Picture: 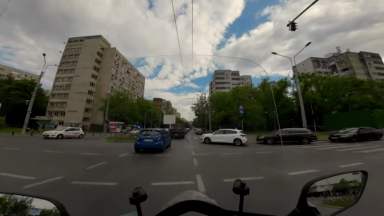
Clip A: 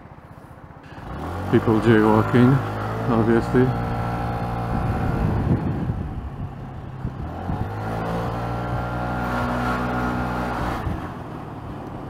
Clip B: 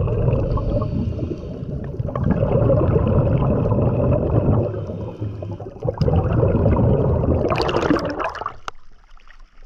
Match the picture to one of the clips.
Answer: A